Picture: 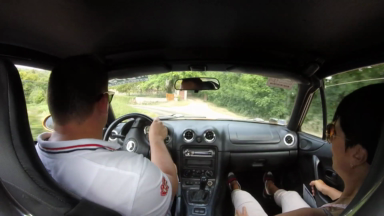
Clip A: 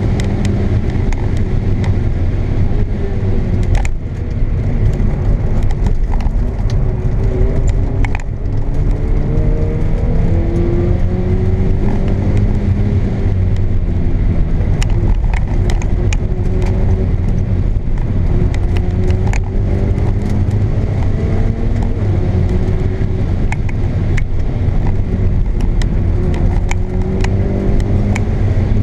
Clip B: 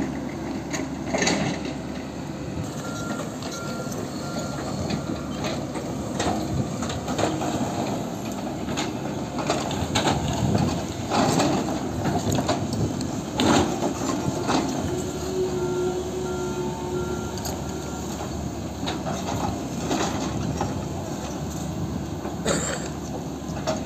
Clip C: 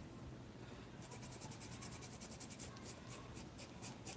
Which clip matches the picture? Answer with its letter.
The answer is A